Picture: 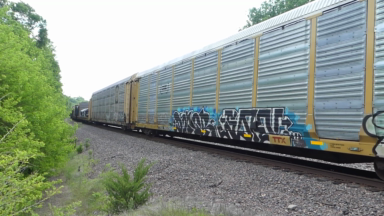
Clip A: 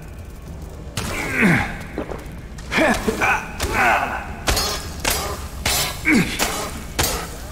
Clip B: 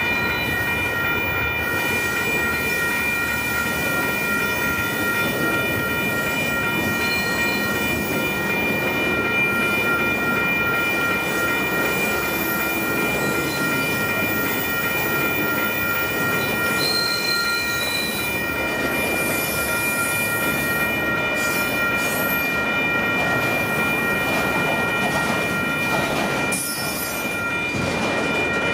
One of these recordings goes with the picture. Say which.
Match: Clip B